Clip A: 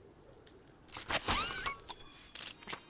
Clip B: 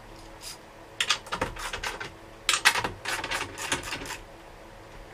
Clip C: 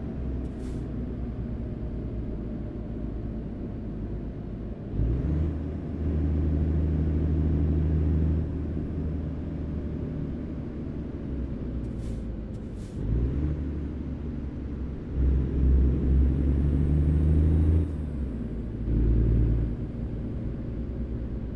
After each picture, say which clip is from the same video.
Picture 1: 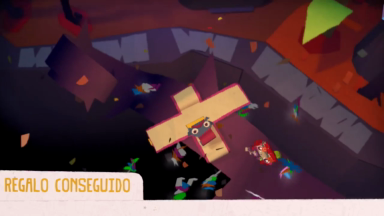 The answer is A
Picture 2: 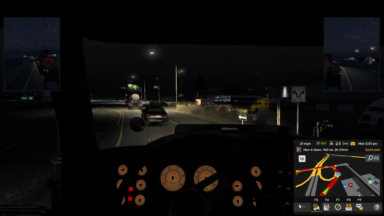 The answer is C